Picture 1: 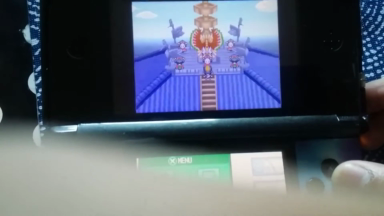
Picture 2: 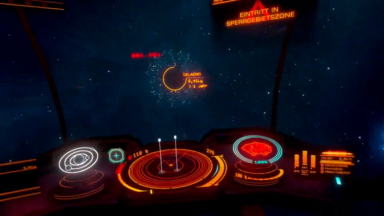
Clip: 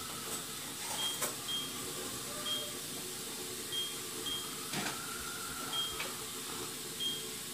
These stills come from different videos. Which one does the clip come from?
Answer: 1